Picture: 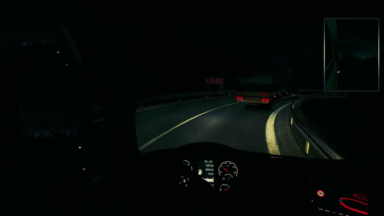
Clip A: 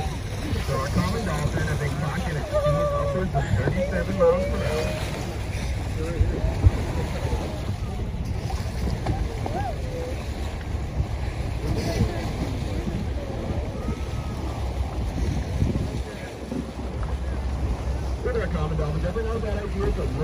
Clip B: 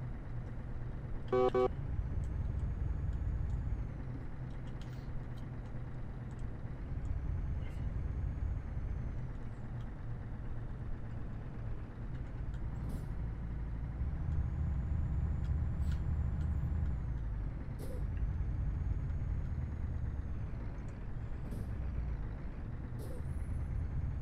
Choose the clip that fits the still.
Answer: B